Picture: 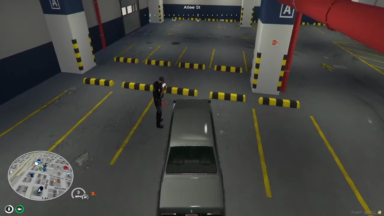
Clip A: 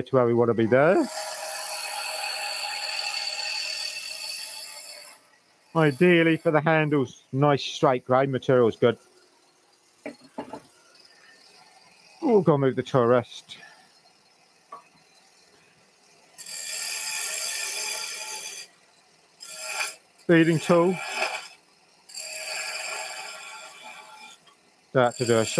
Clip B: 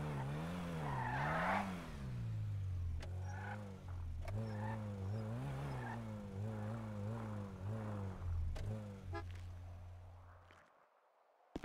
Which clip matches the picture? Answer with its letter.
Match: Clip B